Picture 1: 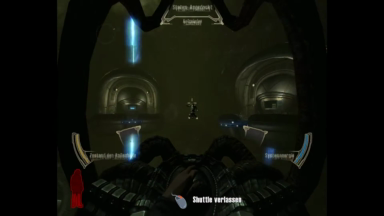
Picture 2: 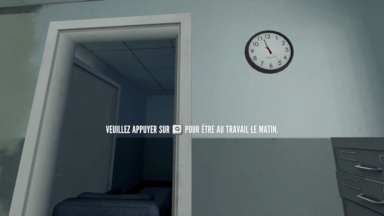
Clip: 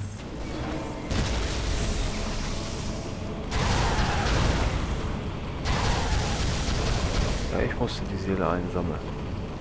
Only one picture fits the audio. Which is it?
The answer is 1